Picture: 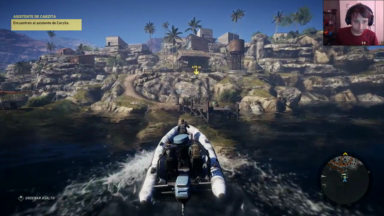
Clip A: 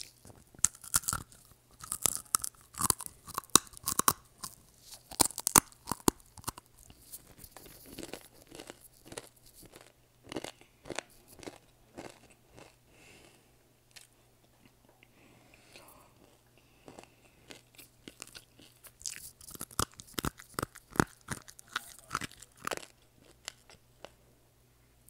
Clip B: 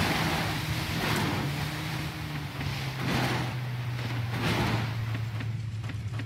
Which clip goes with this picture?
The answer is B